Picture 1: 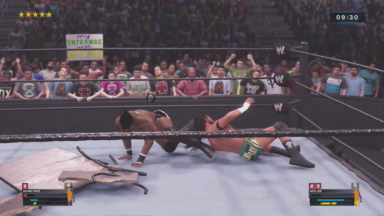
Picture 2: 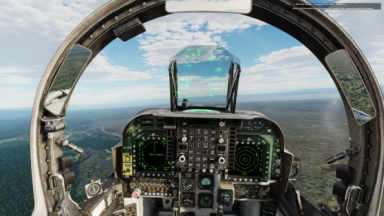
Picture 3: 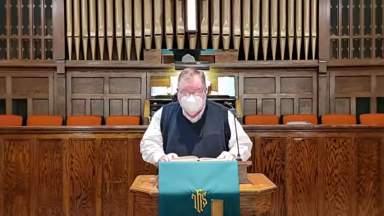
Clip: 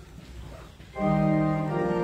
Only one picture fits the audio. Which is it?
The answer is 3